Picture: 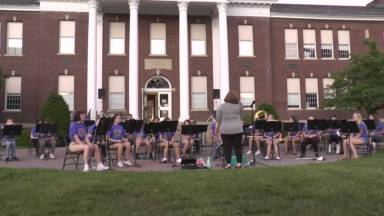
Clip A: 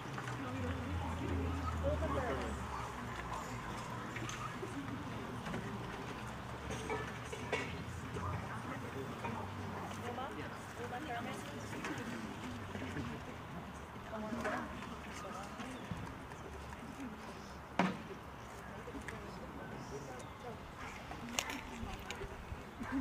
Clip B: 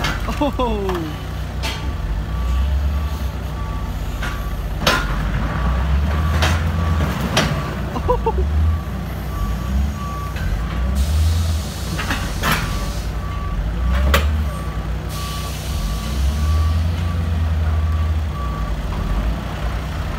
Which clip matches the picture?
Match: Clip A